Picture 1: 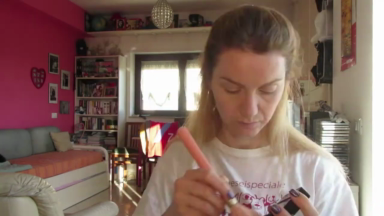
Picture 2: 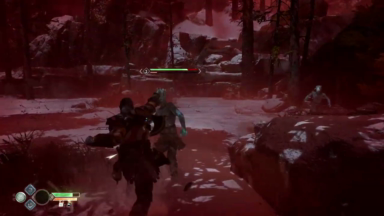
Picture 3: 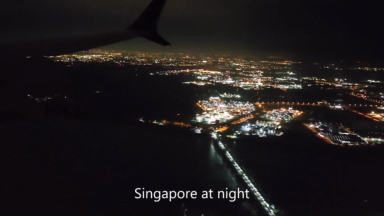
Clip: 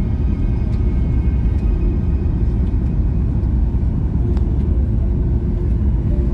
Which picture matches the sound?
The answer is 3